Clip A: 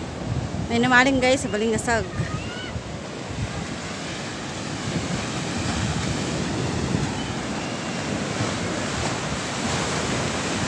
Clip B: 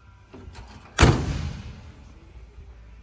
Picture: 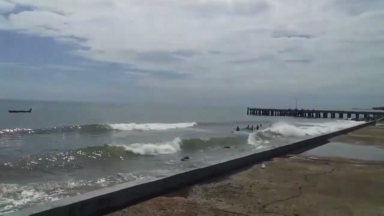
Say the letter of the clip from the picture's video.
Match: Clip A